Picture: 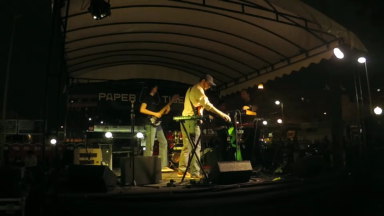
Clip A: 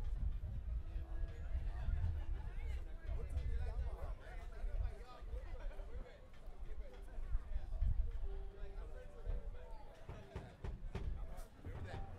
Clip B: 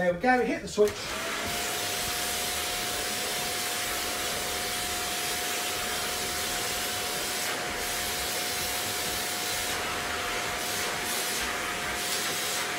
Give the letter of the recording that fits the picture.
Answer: A